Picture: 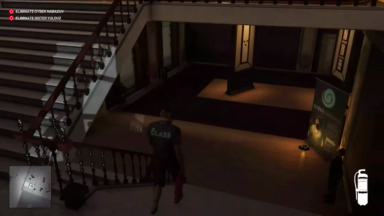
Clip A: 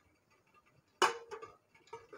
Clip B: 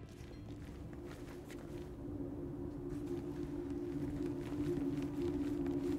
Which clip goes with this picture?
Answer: B